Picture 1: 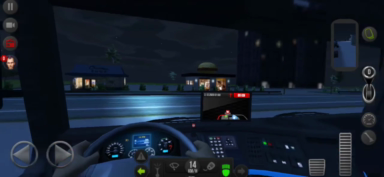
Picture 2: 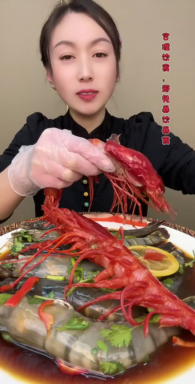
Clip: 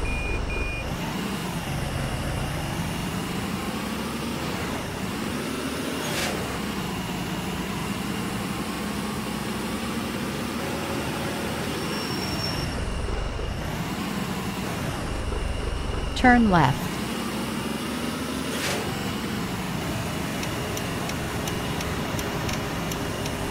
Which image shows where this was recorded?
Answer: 1